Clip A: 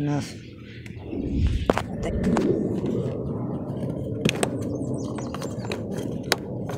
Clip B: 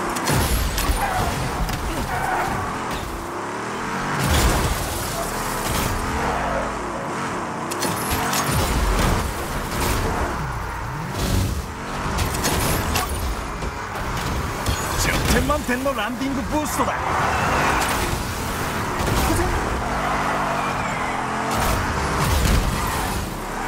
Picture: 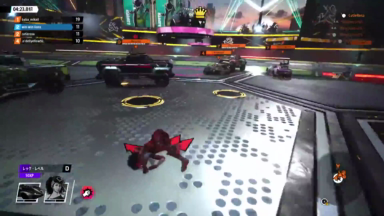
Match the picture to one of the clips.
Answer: B